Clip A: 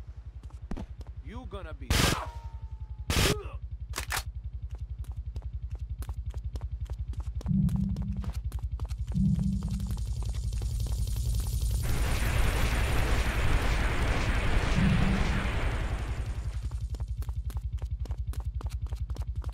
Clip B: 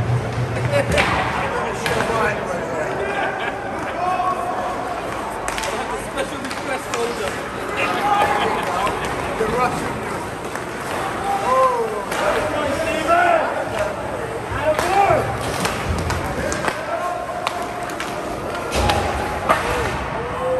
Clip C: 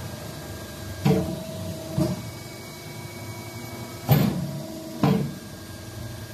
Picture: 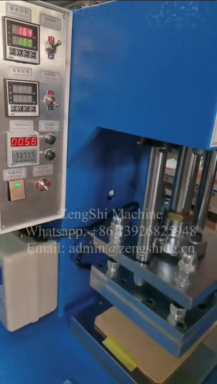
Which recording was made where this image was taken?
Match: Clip C